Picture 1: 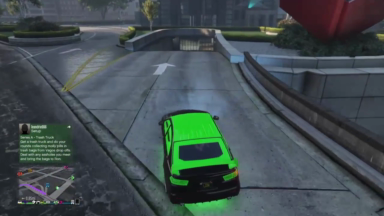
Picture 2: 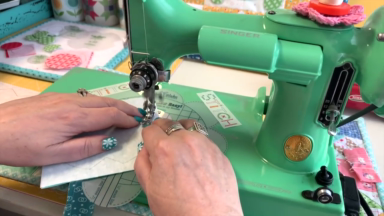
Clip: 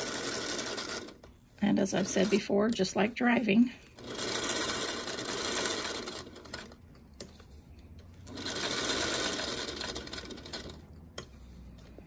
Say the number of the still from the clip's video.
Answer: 2